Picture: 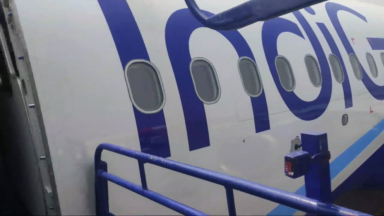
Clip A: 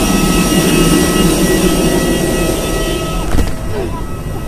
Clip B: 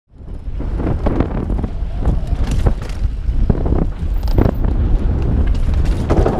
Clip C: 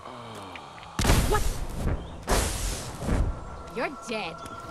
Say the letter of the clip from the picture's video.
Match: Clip A